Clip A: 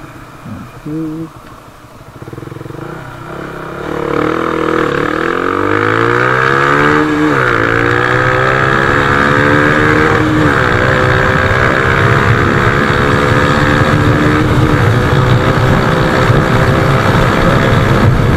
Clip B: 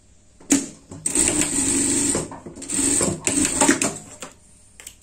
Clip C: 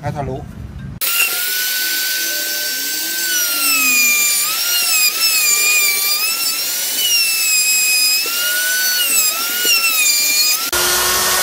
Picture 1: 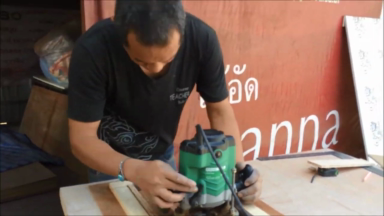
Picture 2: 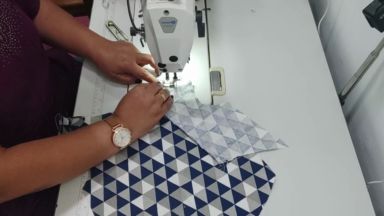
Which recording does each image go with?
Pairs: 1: C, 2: B